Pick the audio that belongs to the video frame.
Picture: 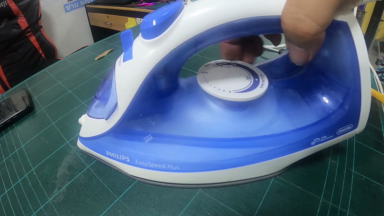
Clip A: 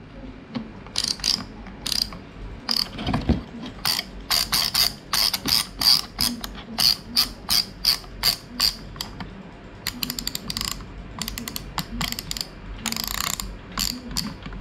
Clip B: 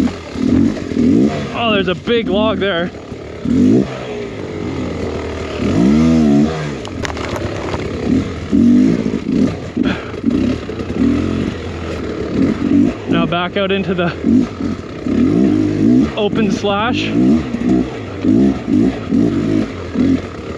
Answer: A